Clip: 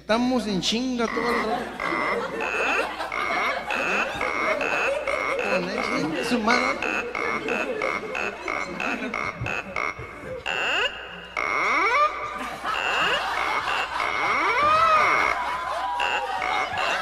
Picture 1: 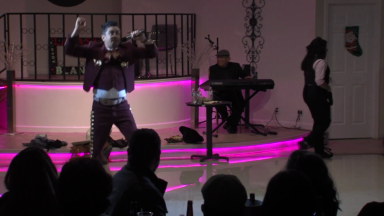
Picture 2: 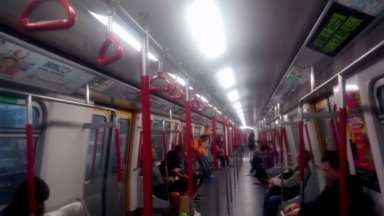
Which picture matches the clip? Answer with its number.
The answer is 1